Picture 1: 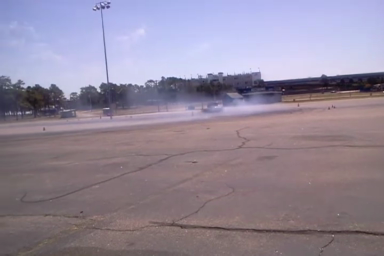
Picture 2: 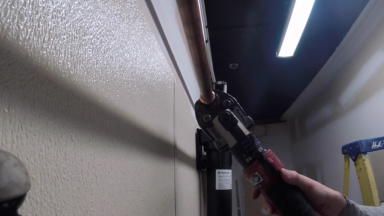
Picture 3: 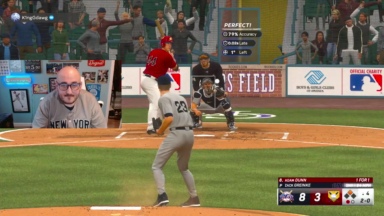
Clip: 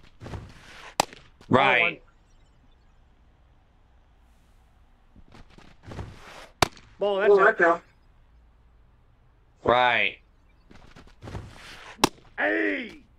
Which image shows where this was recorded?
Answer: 3